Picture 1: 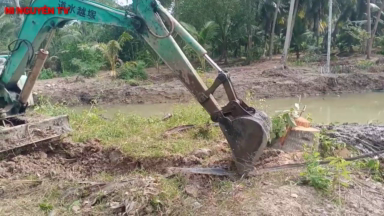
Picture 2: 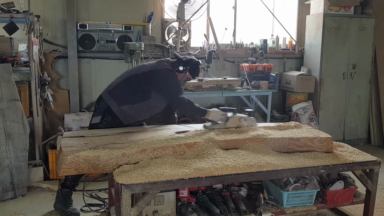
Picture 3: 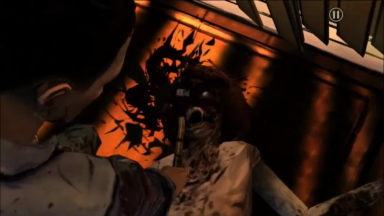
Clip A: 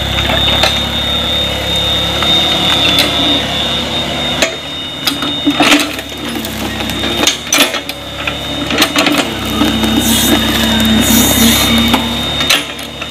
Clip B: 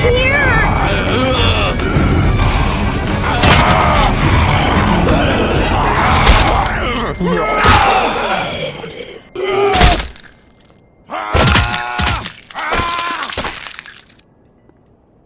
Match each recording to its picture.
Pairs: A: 1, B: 3